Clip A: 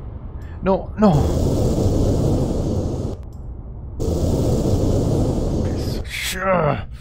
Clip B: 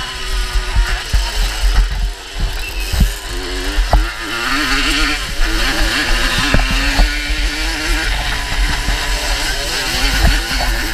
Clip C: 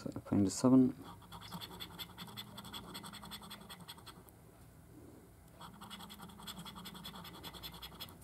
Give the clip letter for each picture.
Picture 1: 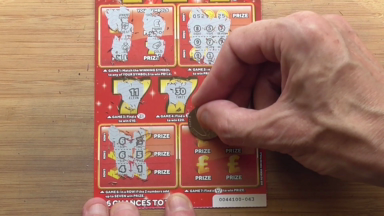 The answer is C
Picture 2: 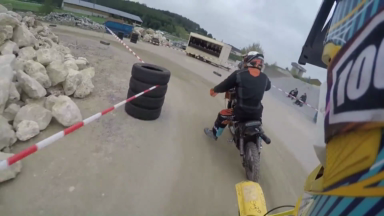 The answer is B